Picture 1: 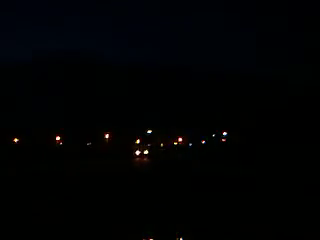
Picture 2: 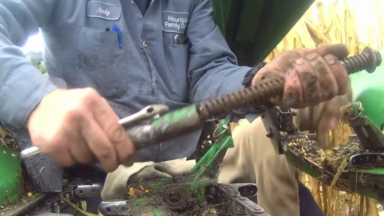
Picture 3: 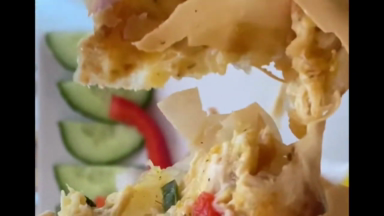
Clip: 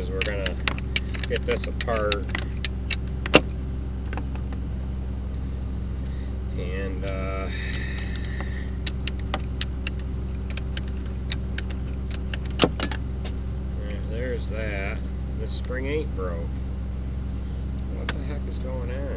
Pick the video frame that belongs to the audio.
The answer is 2